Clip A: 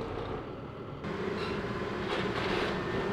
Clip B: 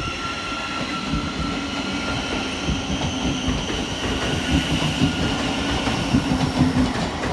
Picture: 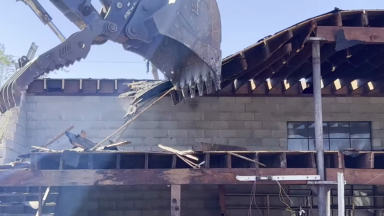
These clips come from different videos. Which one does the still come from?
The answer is A